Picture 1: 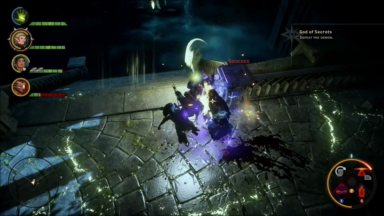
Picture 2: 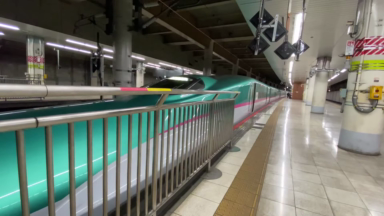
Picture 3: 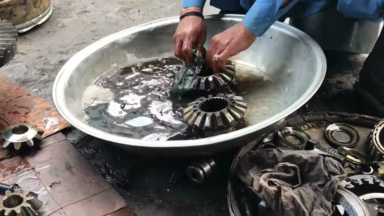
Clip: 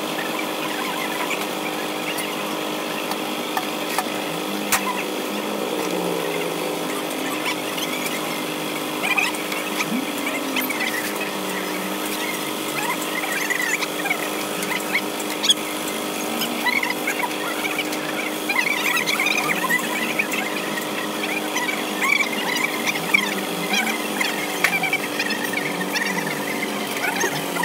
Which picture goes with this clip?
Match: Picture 3